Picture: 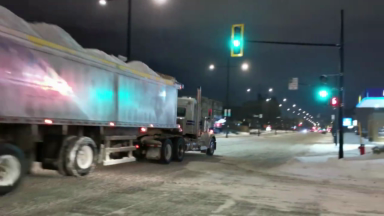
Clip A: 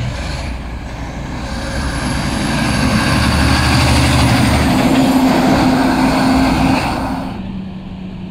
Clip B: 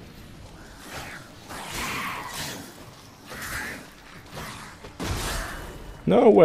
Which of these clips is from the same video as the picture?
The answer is A